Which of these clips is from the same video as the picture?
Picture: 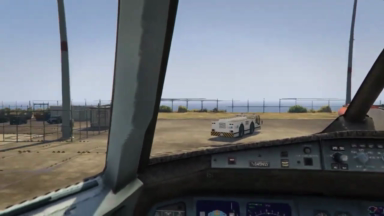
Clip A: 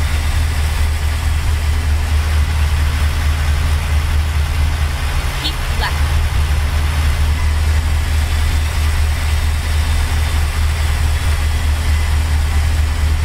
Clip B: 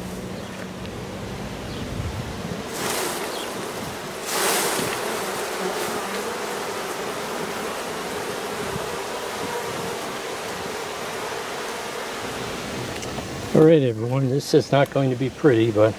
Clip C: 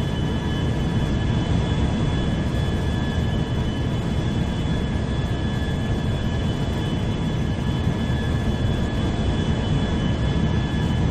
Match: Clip C